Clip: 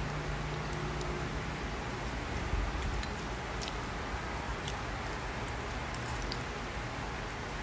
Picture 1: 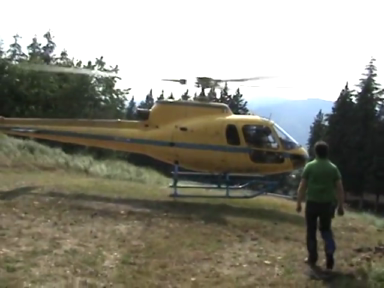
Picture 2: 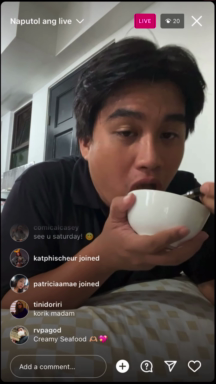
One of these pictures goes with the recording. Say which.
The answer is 2